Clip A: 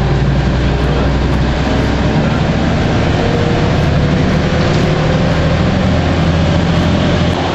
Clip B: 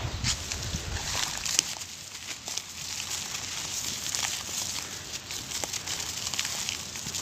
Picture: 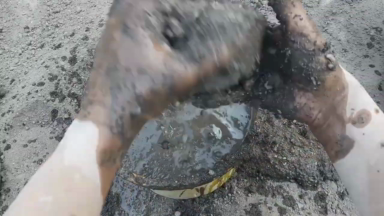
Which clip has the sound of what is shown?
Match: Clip B